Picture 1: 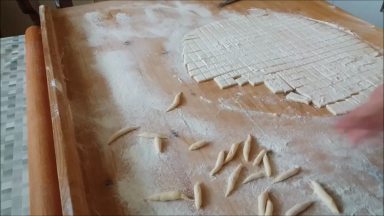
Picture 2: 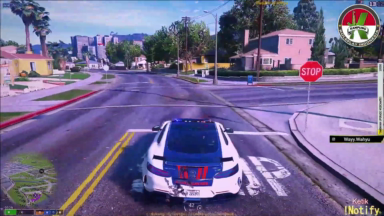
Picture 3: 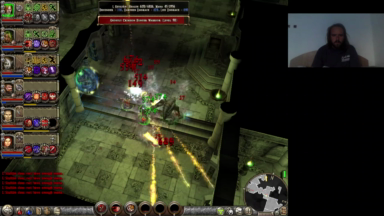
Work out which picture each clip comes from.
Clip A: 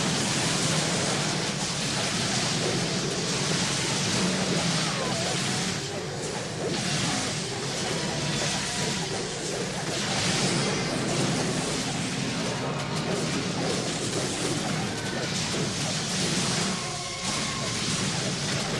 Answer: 3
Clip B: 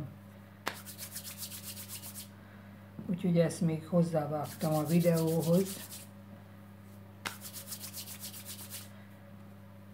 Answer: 1